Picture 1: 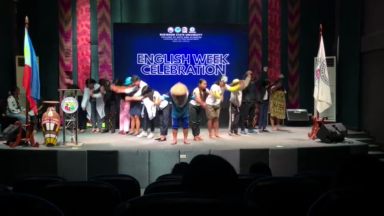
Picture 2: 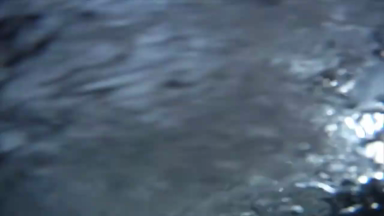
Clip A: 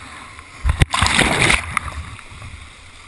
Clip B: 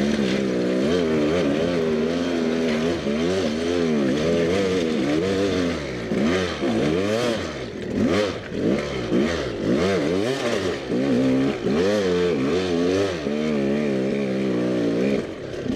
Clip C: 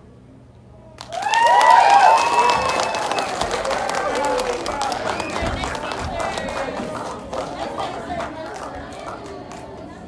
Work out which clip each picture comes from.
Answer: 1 C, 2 A